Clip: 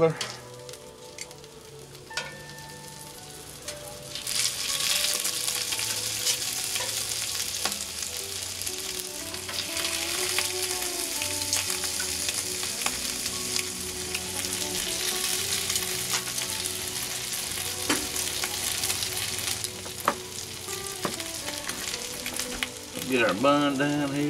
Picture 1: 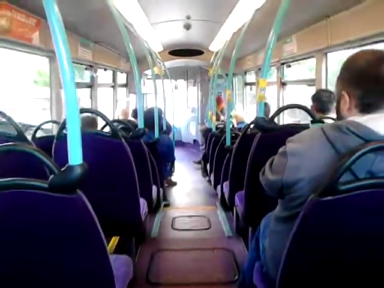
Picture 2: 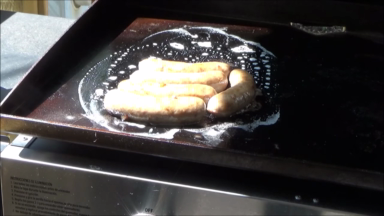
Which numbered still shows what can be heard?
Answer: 2